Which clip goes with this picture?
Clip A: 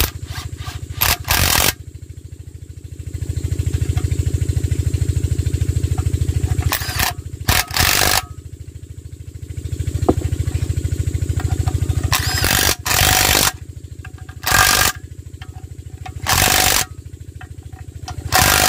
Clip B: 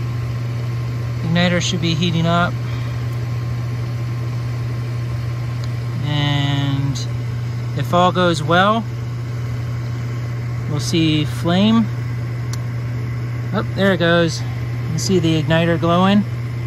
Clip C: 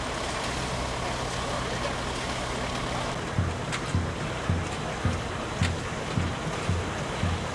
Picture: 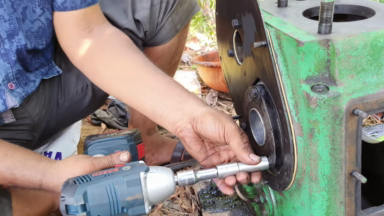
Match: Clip A